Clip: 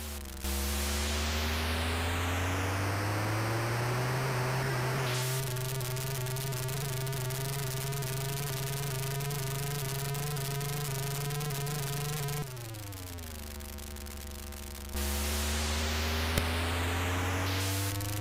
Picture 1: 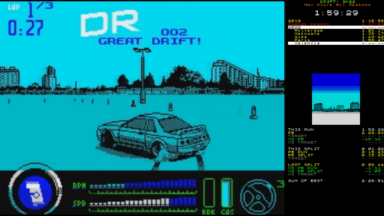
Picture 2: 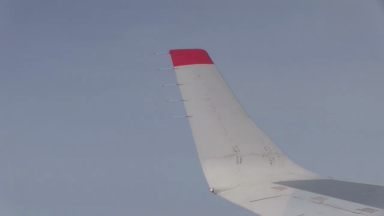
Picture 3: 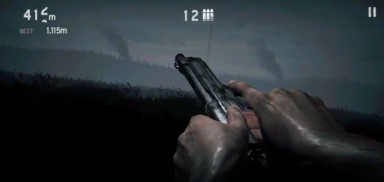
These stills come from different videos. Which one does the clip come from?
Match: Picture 1